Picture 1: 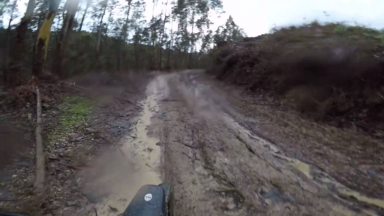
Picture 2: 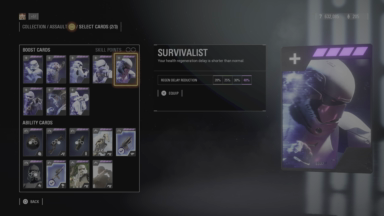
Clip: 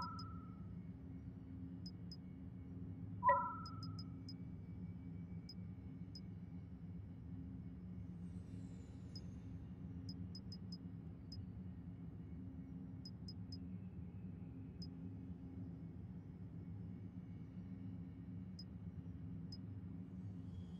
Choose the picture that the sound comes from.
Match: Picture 2